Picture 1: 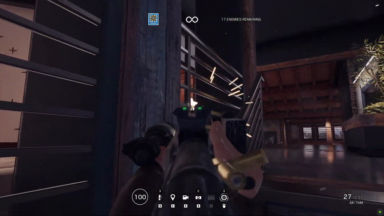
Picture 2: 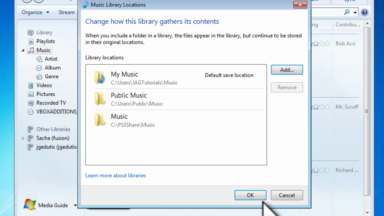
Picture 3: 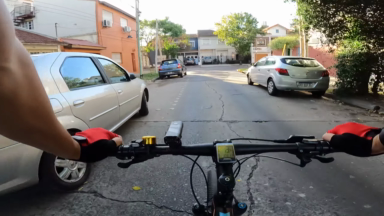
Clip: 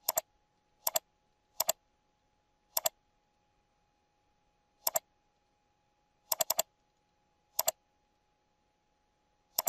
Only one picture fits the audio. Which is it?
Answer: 2